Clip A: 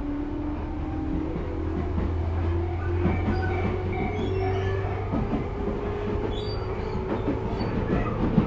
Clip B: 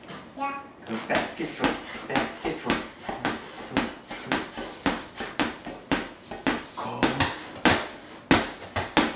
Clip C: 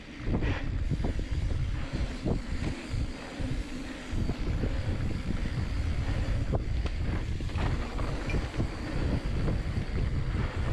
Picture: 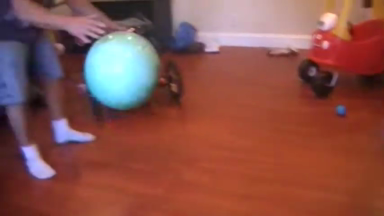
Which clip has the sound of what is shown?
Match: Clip B